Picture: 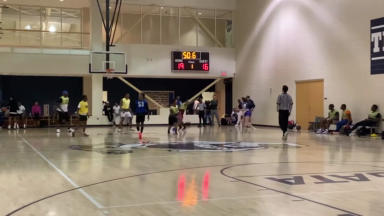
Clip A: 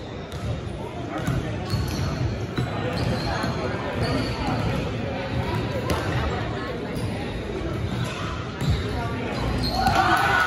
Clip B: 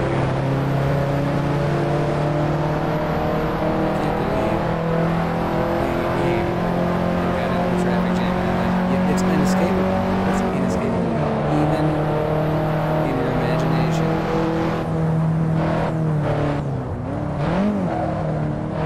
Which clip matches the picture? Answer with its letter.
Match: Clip A